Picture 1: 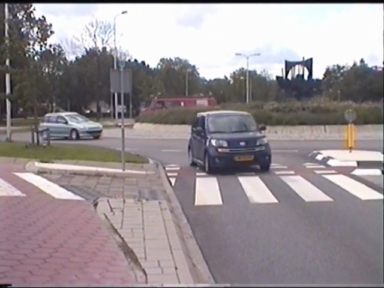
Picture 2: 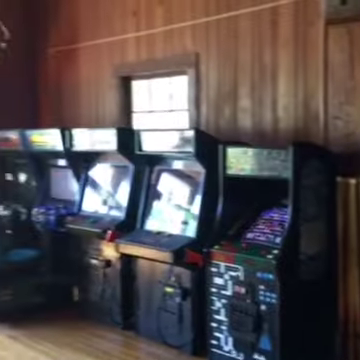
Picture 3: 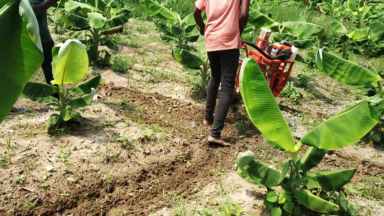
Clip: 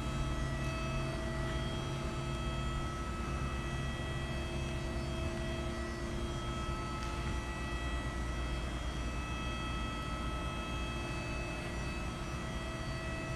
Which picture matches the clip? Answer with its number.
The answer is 2